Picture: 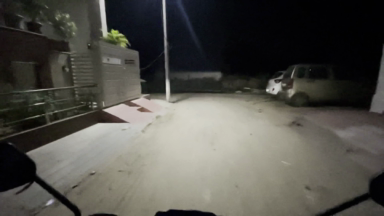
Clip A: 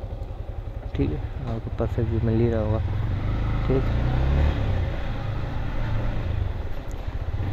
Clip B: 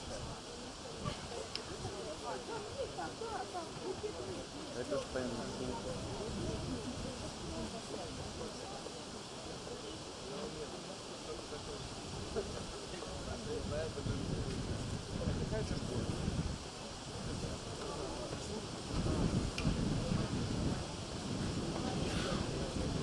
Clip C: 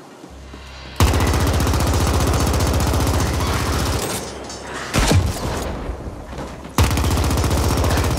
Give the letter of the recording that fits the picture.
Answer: A